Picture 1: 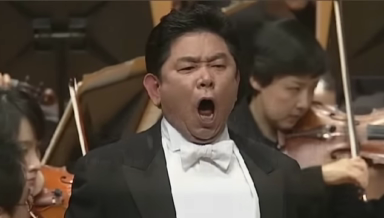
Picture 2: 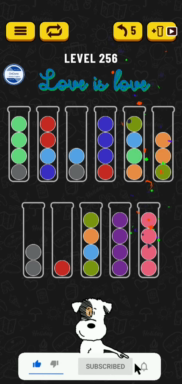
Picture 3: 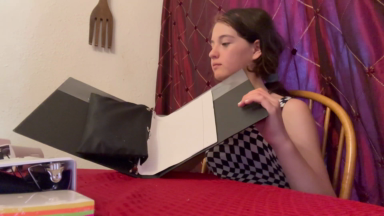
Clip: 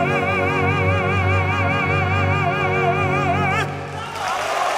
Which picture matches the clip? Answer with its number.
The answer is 1